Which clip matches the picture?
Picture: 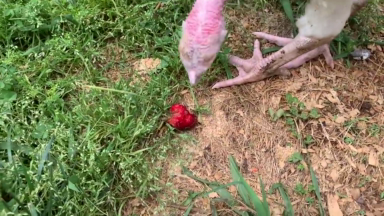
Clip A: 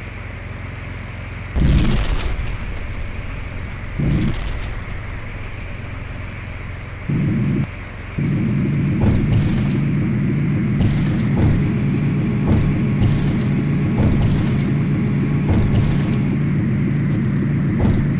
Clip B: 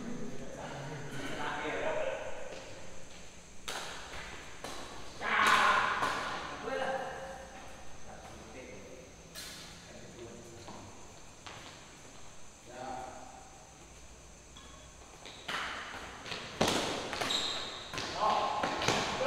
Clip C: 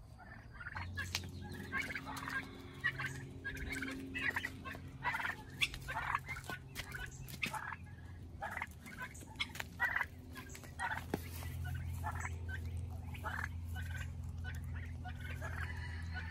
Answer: C